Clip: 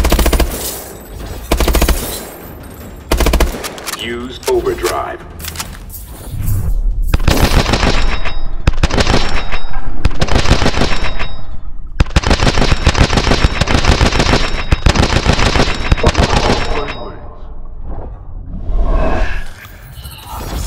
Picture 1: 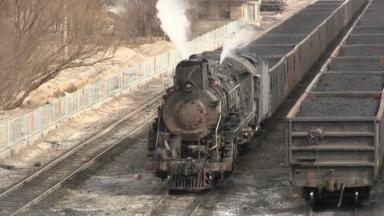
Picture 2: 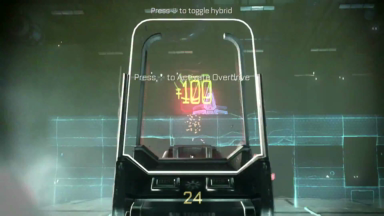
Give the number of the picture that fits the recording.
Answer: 2